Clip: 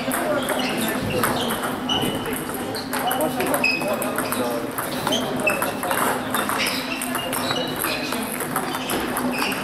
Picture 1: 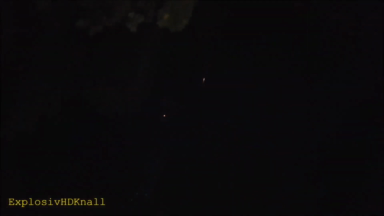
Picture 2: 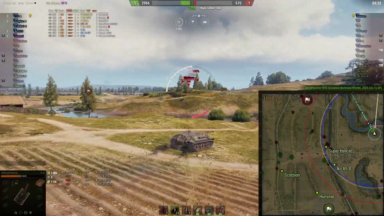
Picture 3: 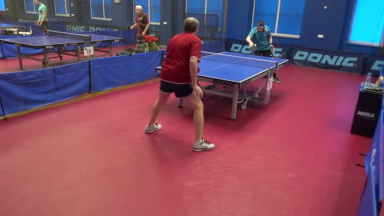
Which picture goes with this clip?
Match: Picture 3